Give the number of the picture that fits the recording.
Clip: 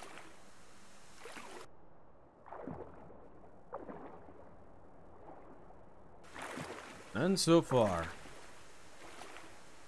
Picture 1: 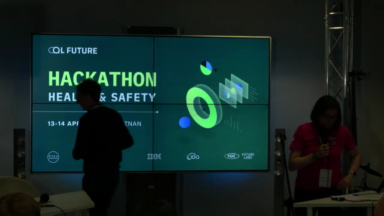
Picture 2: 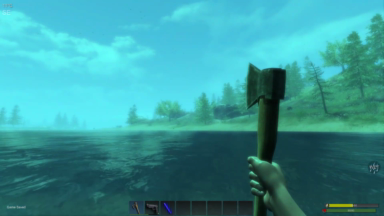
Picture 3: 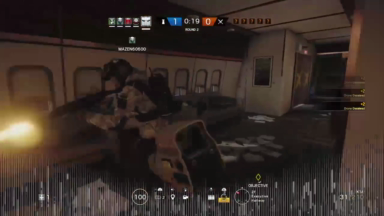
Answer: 2